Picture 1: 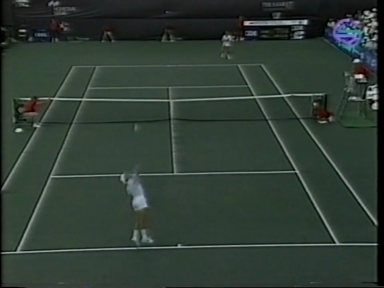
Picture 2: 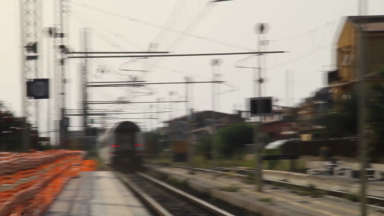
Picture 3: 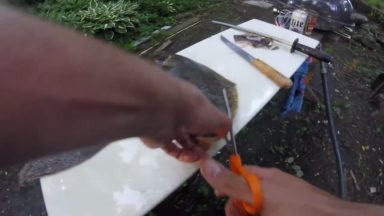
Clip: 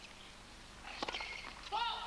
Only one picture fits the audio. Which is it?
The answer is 1